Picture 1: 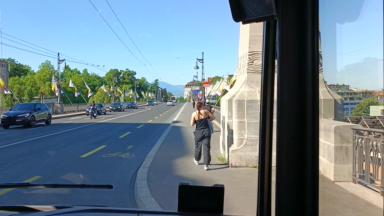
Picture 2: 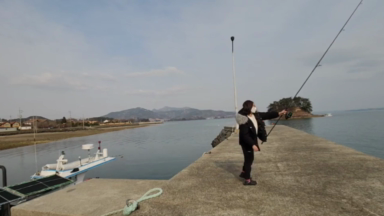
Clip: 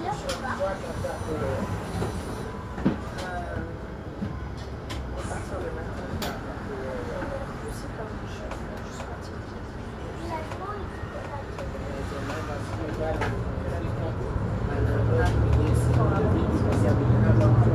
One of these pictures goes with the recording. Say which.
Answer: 1